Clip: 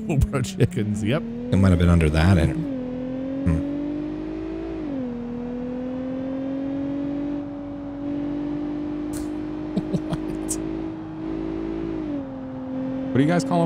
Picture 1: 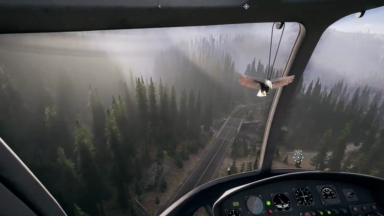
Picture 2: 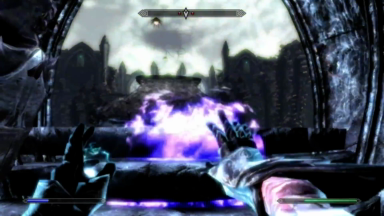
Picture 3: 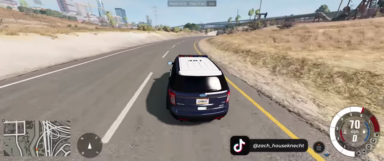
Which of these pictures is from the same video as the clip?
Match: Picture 3